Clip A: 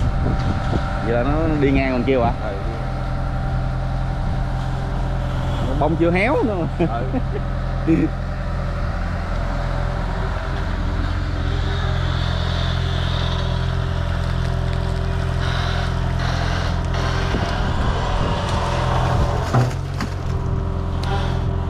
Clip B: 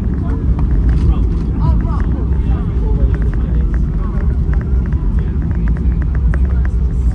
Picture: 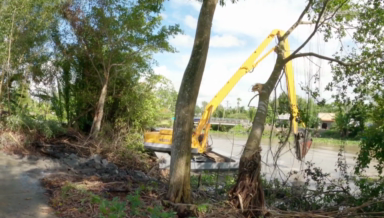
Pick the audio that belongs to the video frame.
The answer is A